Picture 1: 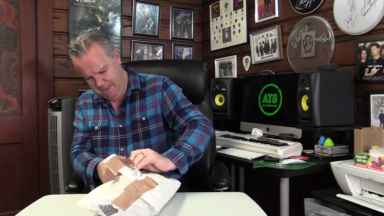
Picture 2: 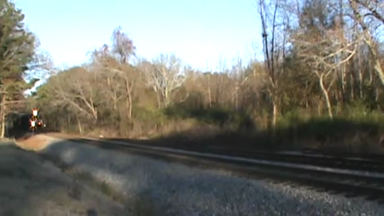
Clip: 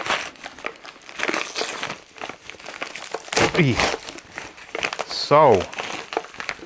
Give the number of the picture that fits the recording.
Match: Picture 1